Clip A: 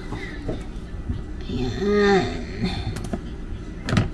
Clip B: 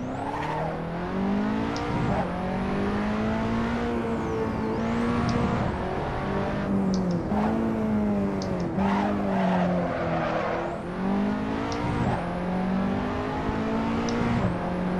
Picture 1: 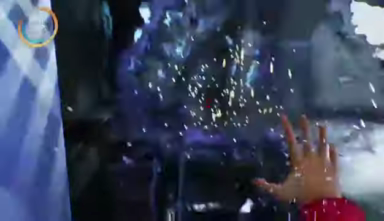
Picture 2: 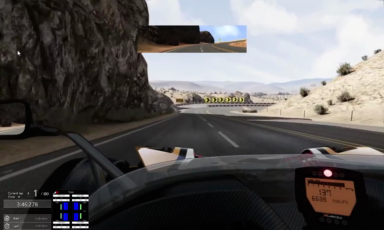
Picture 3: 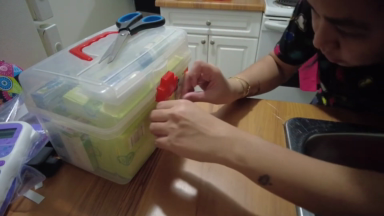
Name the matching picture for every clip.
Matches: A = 3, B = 2